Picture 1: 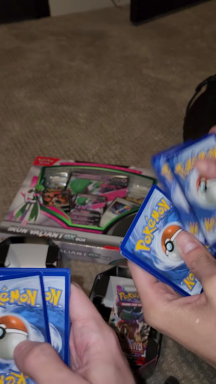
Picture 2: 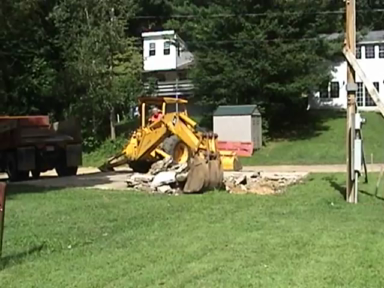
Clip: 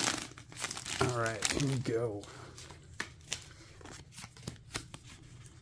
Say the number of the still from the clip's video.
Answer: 1